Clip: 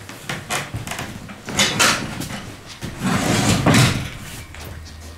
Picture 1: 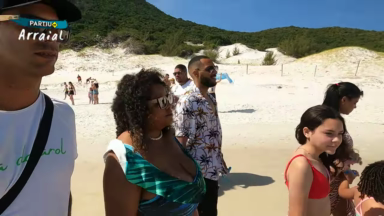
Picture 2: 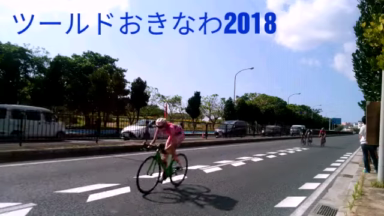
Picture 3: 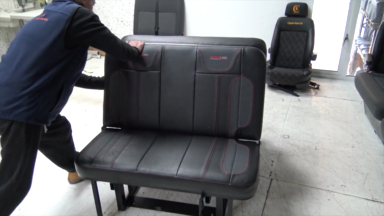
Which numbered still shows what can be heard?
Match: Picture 3